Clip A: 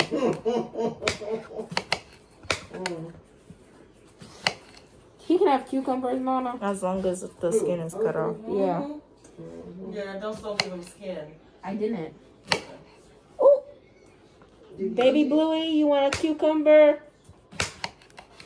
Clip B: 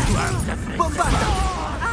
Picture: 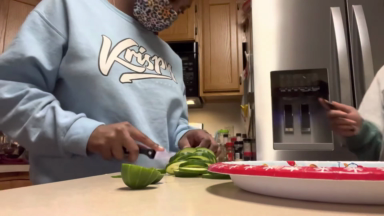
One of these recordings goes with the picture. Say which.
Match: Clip A